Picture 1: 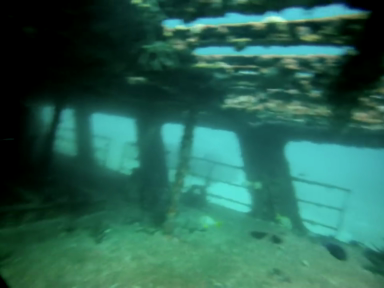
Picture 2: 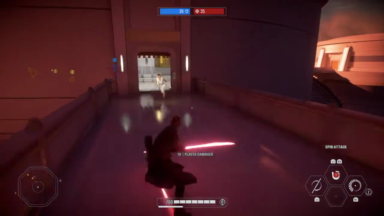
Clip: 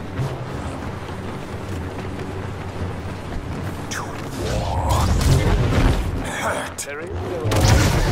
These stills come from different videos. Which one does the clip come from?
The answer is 2